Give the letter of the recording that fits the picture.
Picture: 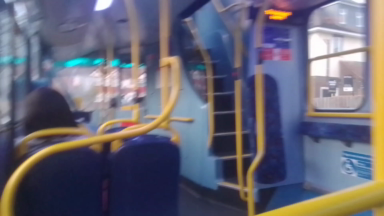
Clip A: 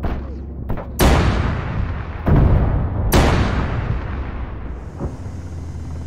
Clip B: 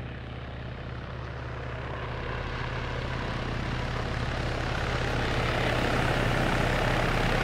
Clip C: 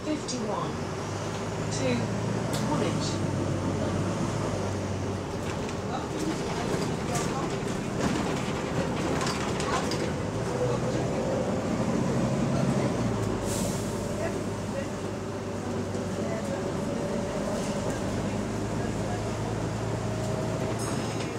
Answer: C